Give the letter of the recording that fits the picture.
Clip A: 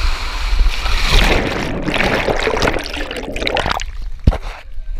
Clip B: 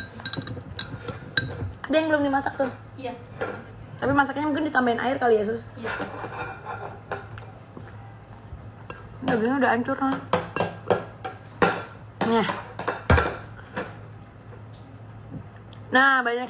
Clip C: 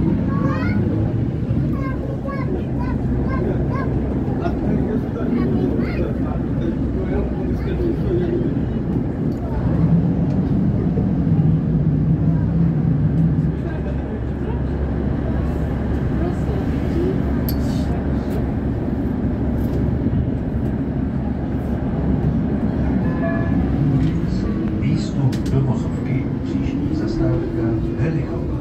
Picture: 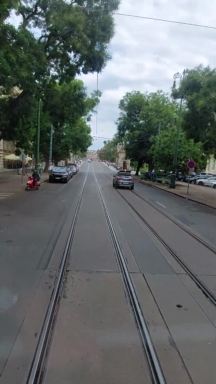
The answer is C